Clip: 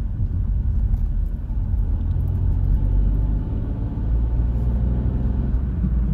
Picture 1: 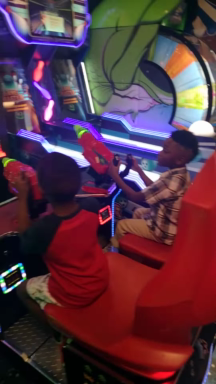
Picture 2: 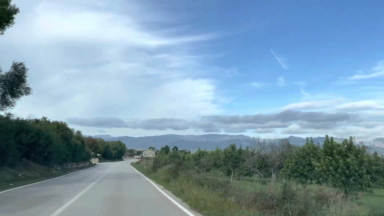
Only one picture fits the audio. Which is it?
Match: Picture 2